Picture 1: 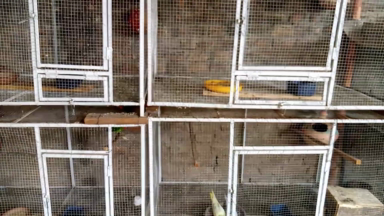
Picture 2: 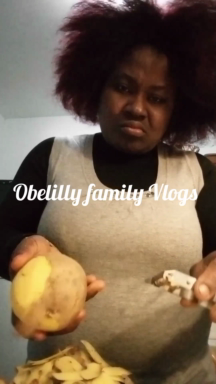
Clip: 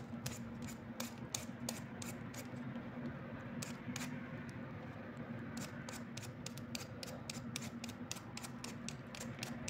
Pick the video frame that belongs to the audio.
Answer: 2